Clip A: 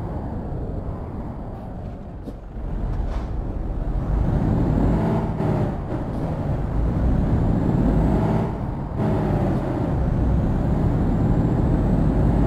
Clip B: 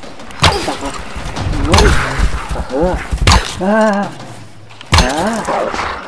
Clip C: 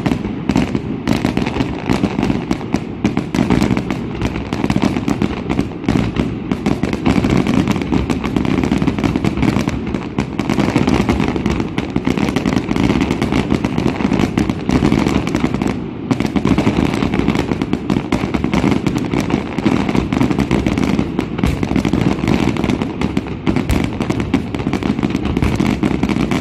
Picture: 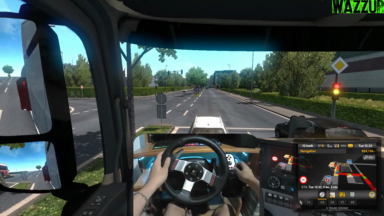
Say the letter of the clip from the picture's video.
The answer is A